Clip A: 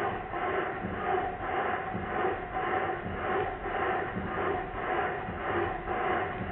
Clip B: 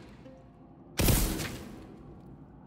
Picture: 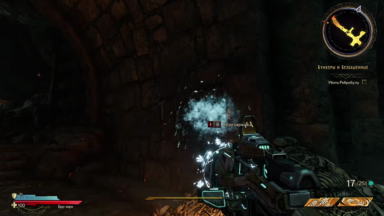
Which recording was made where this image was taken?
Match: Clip B